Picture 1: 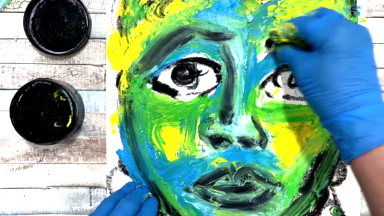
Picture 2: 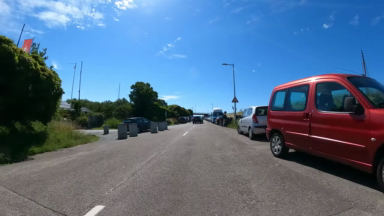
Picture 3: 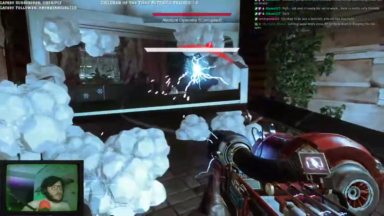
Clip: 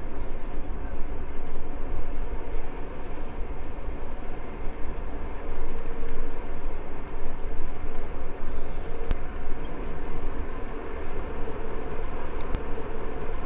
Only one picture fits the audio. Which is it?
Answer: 2